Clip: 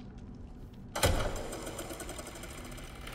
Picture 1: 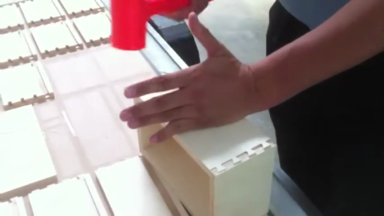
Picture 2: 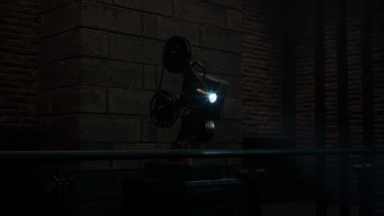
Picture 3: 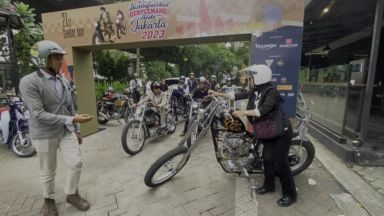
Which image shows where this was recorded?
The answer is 2